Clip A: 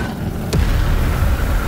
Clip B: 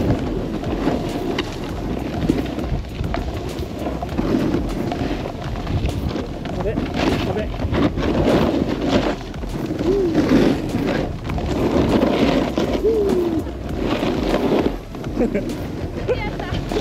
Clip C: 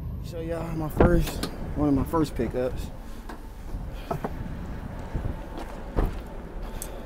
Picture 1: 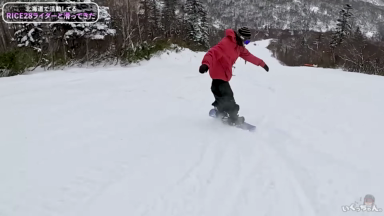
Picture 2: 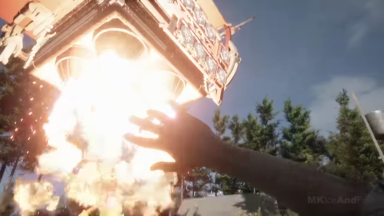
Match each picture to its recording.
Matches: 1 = B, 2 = A